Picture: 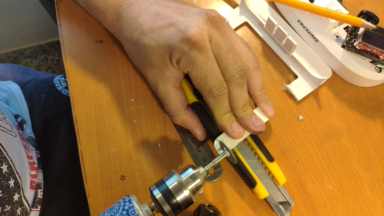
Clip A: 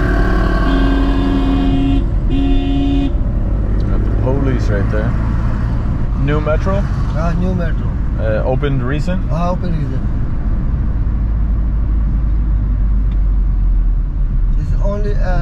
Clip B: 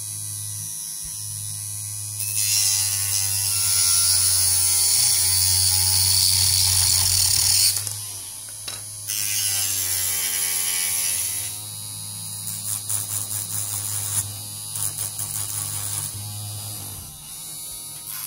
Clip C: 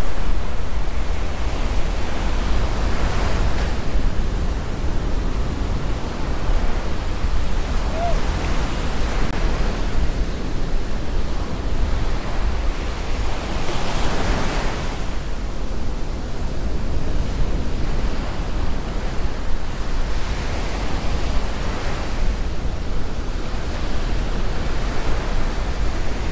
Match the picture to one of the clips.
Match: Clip B